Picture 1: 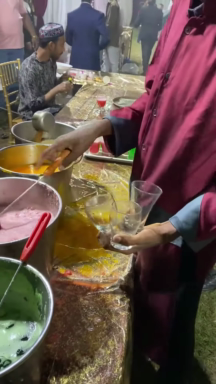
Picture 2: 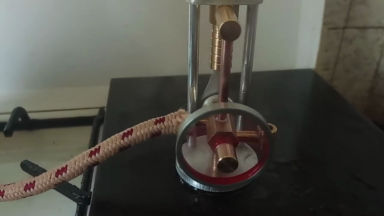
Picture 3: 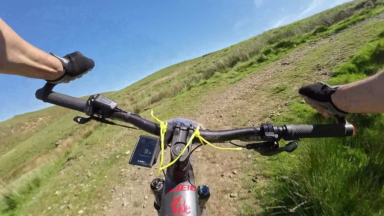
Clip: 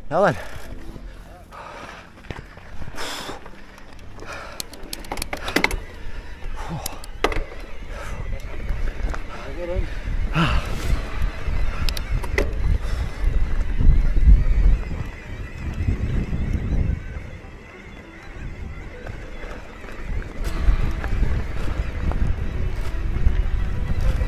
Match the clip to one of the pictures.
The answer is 3